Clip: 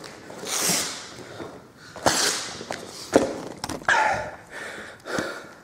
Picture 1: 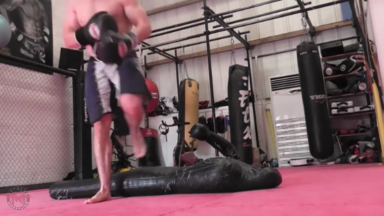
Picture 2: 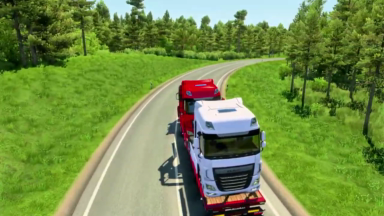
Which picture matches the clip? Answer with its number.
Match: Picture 1